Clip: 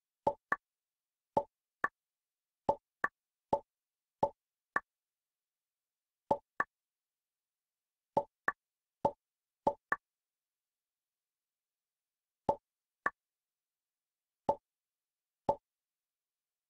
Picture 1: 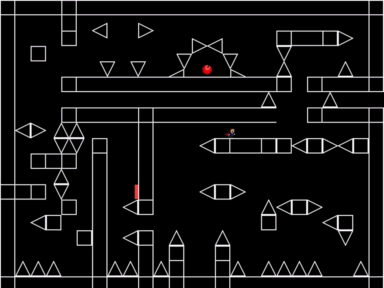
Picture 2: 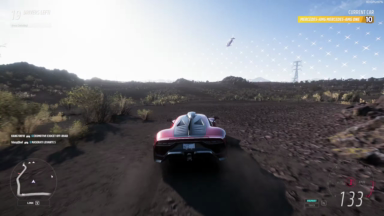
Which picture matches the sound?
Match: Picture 1